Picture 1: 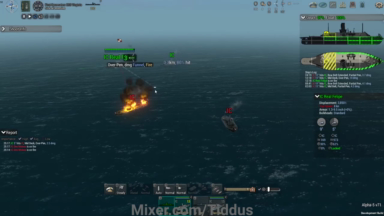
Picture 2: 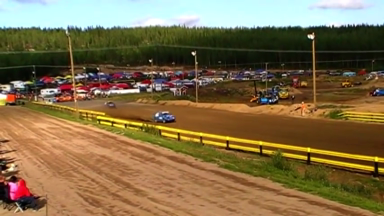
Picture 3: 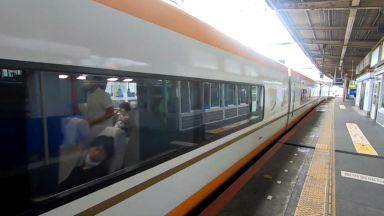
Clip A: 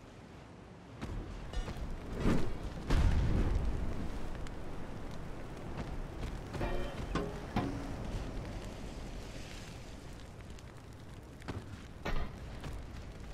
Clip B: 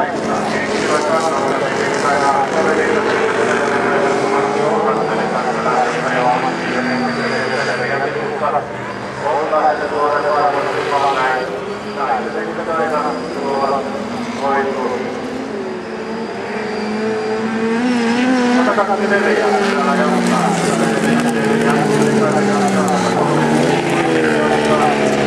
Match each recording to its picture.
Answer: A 1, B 2